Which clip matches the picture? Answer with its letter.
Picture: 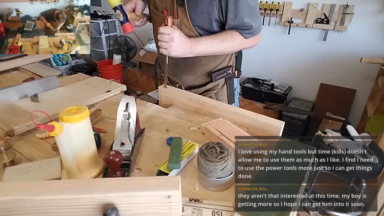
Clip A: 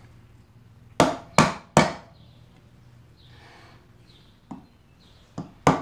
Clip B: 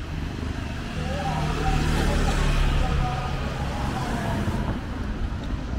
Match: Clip A